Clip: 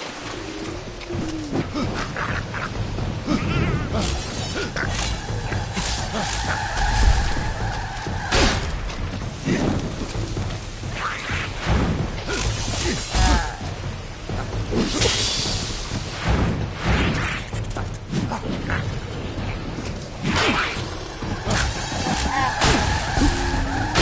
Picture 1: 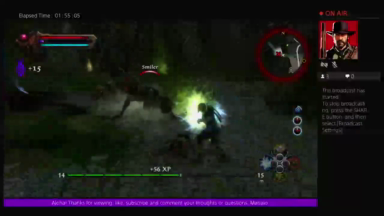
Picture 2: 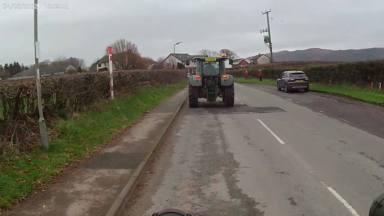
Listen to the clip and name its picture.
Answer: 1